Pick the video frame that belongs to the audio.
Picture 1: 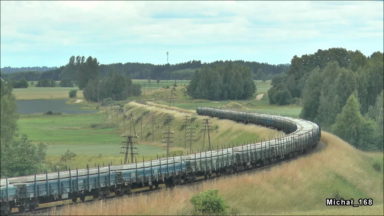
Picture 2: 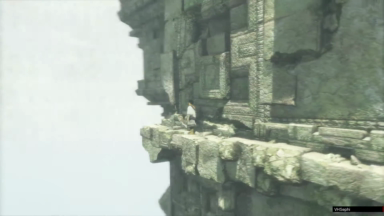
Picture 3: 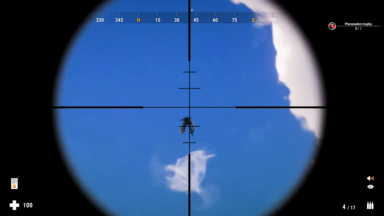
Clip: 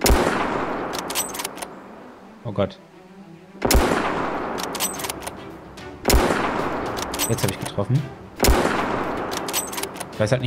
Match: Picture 3